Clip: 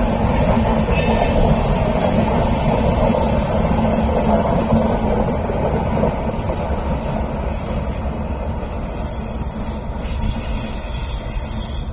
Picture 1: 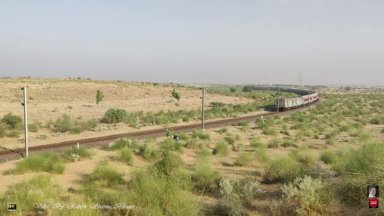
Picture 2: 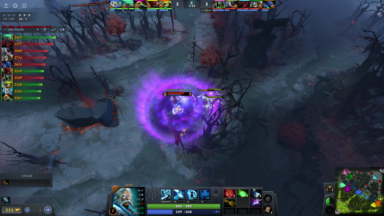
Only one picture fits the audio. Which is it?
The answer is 1